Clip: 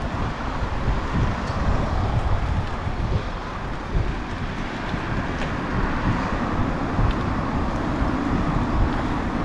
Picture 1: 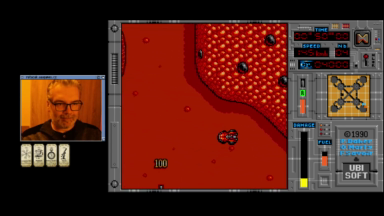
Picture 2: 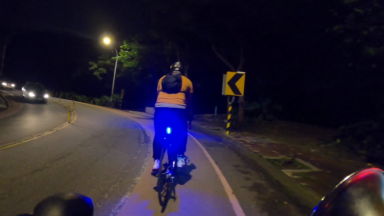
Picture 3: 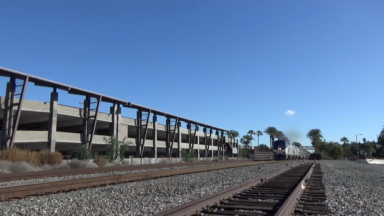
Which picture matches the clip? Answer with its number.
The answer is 2